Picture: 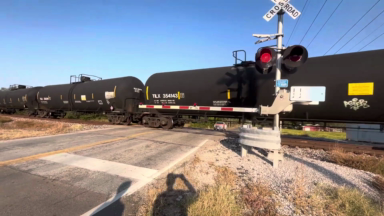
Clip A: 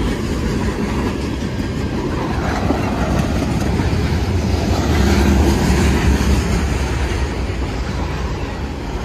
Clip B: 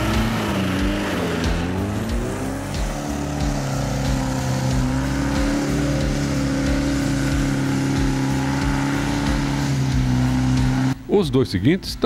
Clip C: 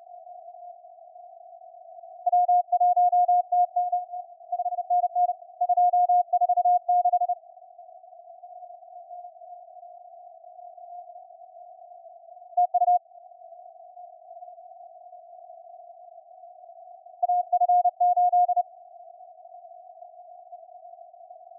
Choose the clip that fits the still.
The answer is A